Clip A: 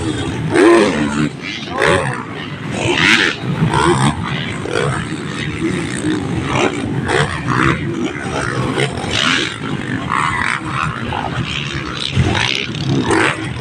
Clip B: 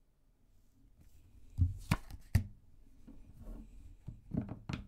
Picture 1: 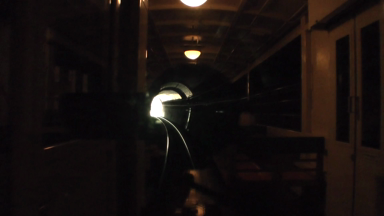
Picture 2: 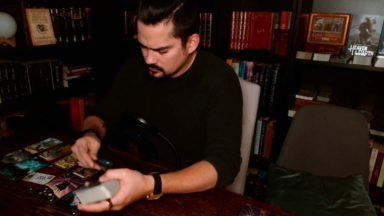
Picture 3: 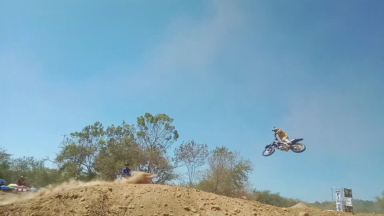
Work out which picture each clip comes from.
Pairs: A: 3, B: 2